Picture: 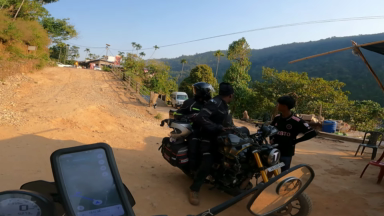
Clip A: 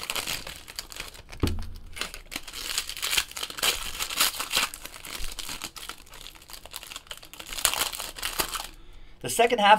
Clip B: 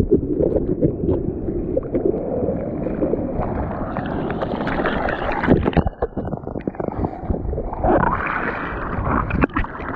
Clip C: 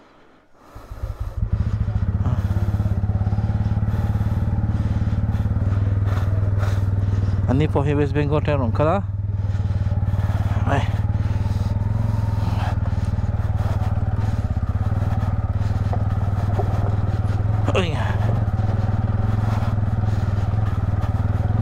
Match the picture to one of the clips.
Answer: C